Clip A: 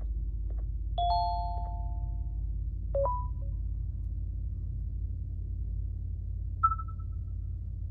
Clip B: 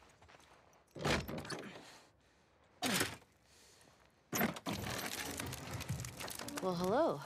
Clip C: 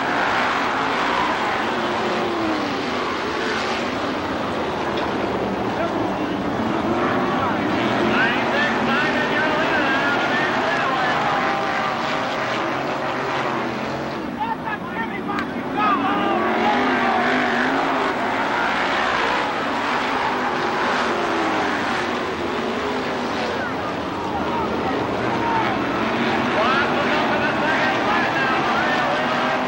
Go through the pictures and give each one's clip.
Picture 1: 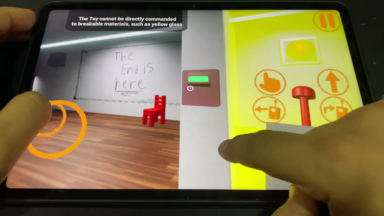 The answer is A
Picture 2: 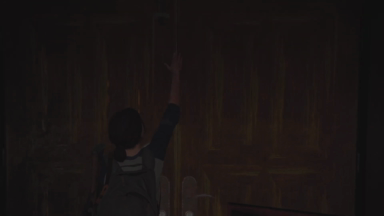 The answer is B